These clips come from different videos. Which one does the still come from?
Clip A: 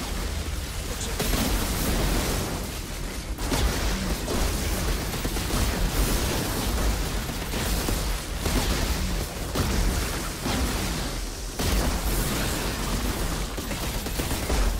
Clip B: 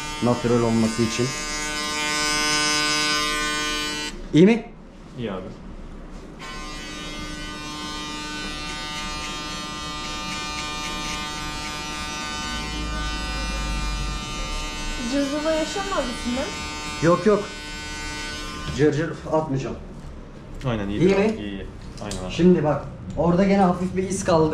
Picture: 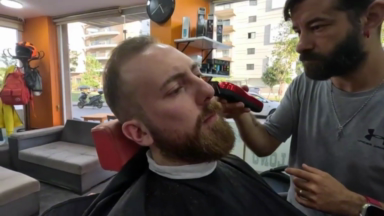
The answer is B